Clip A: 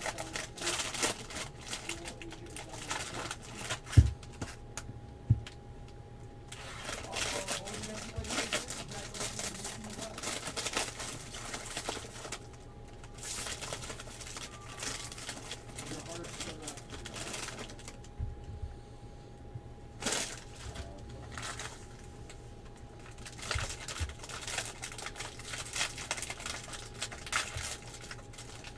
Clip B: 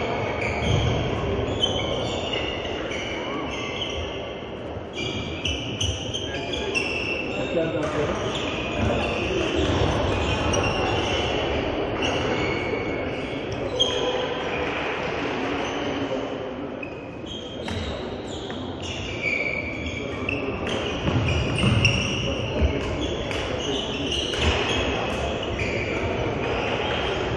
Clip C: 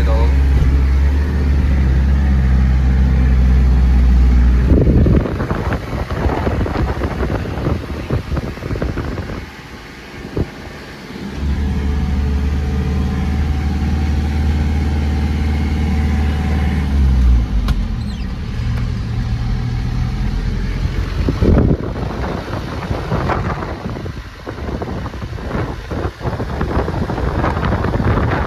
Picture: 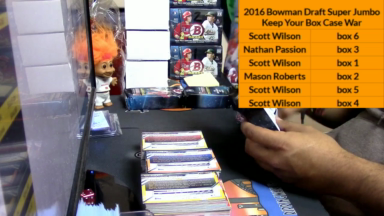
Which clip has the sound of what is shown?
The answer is A